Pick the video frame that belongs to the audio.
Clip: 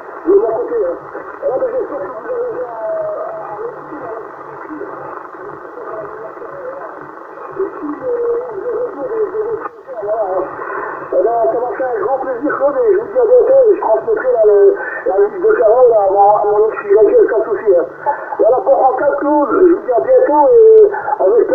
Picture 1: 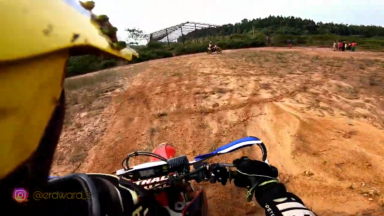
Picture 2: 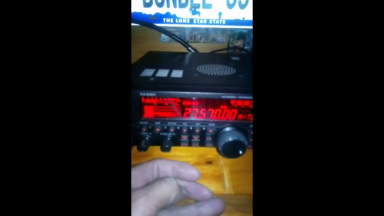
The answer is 2